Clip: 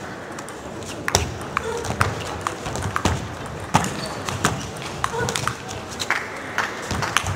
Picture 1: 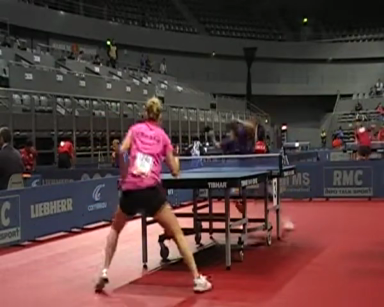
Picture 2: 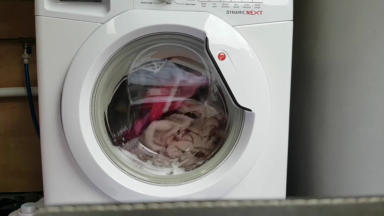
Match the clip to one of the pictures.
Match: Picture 1